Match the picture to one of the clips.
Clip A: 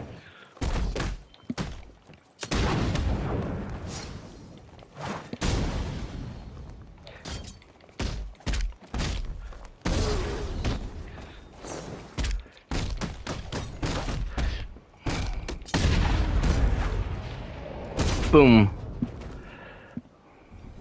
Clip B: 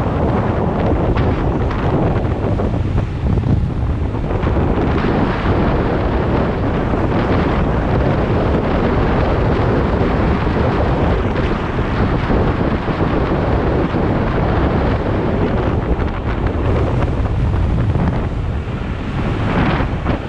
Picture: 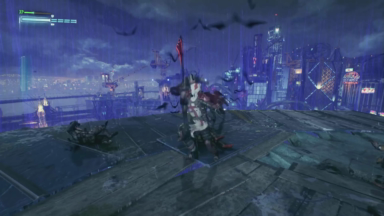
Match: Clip A